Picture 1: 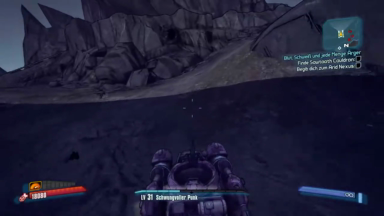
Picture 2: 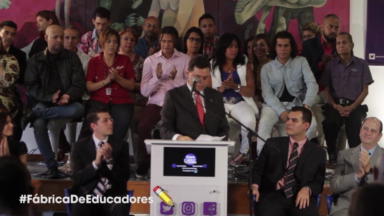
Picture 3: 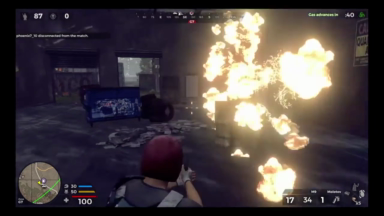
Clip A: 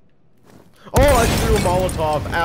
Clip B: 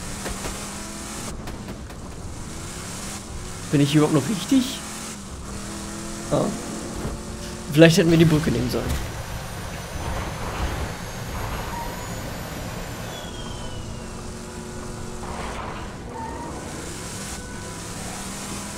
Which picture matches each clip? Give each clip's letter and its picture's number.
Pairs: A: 3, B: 1